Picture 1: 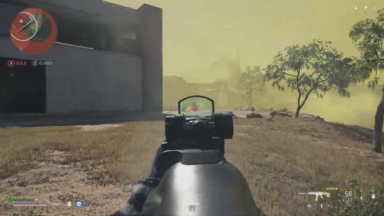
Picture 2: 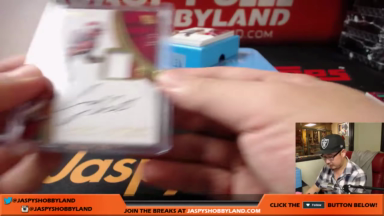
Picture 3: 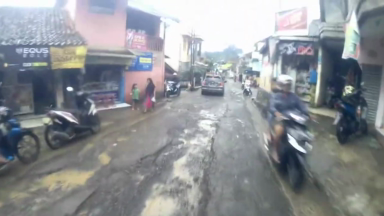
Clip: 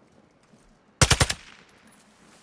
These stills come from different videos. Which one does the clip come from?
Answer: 1